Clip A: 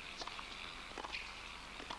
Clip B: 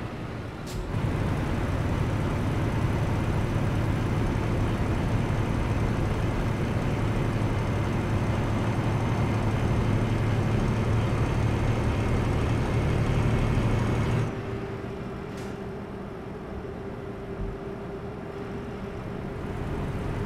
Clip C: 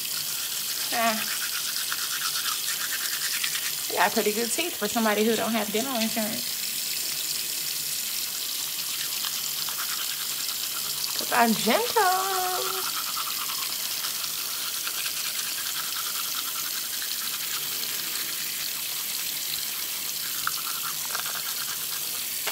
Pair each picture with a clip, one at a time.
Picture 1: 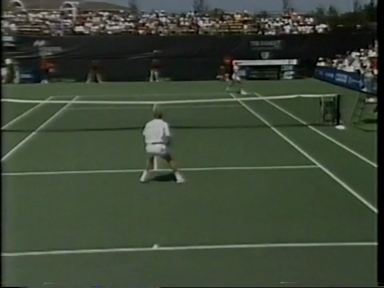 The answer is A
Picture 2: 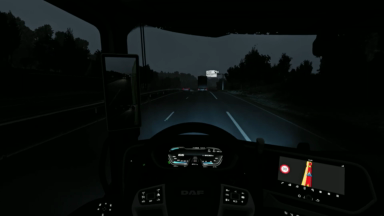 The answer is B